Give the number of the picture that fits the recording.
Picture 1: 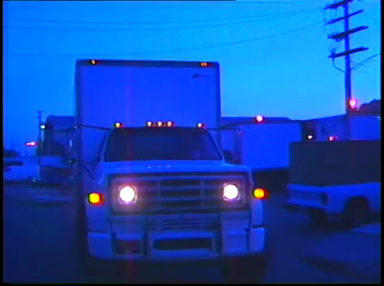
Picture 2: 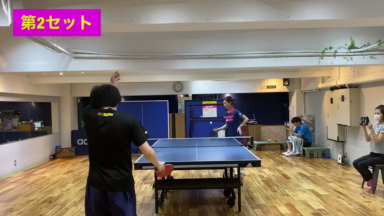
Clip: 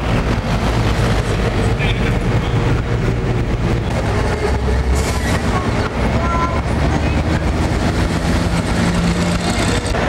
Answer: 1